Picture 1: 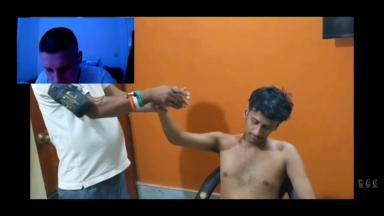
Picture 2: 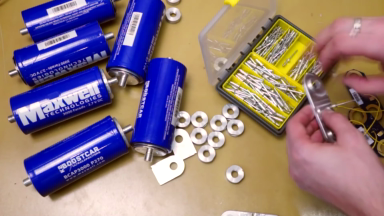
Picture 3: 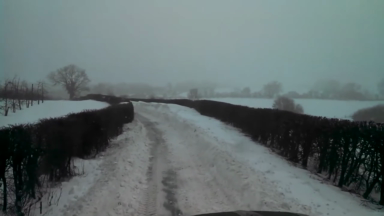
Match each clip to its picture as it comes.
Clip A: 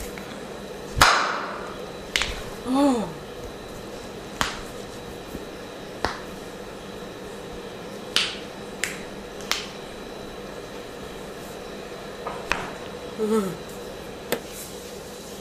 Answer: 1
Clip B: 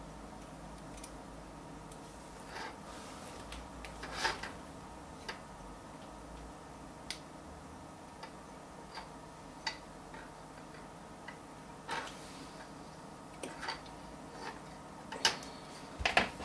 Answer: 2